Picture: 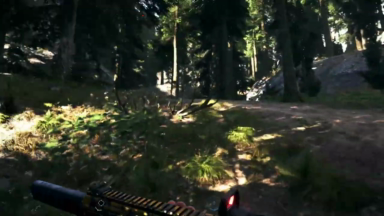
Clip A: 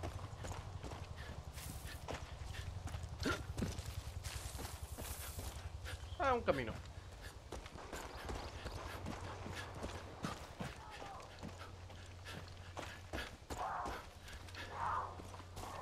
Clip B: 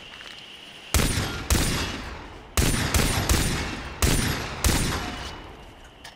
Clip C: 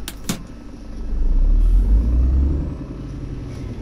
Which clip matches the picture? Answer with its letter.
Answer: A